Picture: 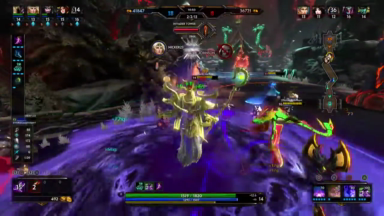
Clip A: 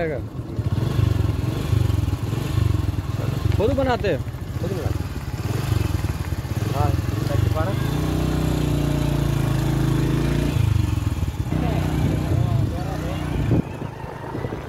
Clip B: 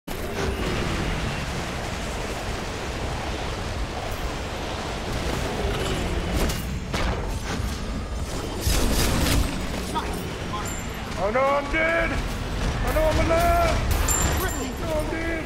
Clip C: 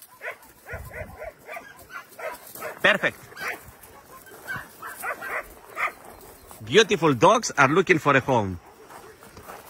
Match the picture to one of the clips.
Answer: B